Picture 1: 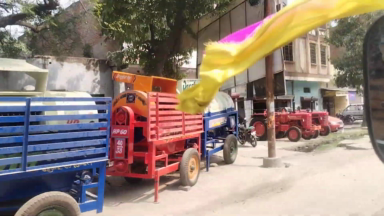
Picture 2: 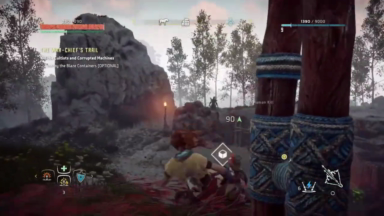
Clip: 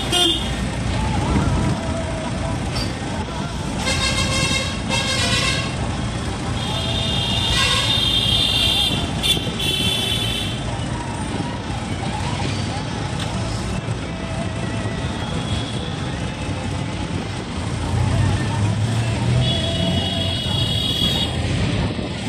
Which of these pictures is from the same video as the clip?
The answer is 1